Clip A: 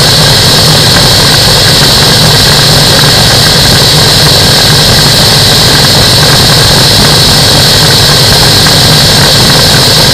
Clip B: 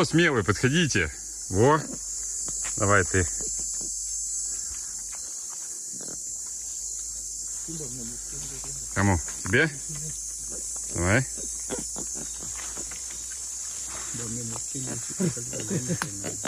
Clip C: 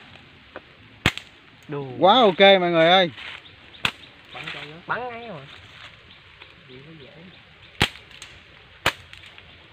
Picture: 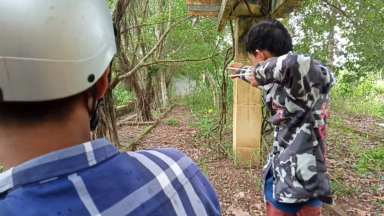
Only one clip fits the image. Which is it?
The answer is C